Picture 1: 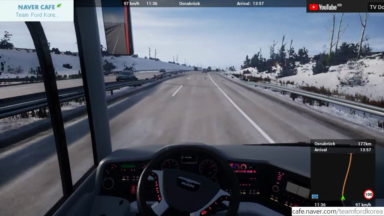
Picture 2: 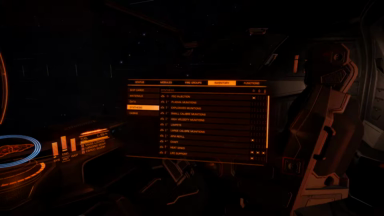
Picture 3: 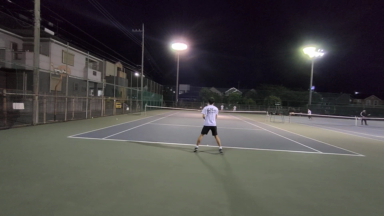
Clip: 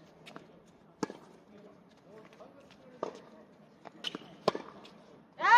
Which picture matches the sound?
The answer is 3